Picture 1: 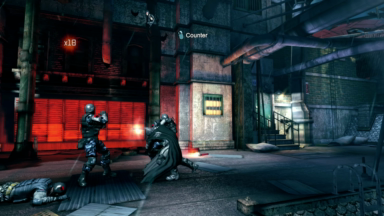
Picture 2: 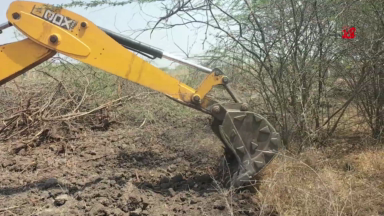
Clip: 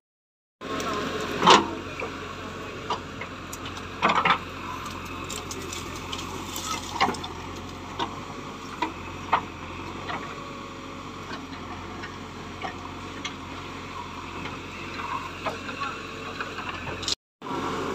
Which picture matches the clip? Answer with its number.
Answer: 2